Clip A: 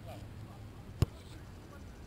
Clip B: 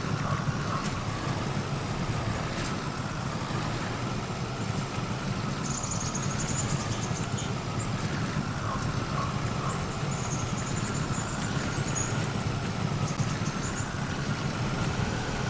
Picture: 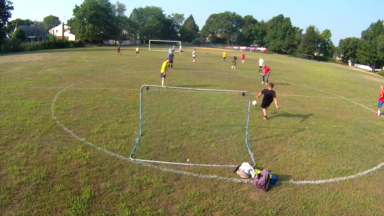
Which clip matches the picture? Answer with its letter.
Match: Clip A